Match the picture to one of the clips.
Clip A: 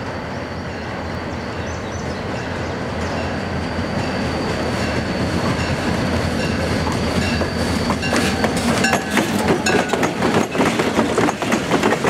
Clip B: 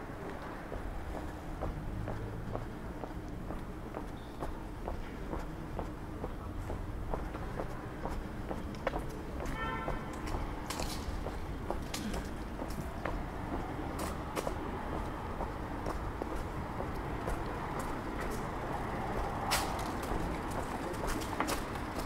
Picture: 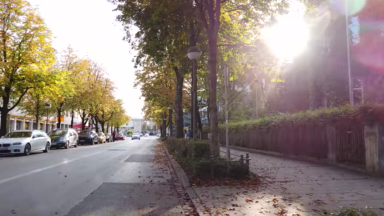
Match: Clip B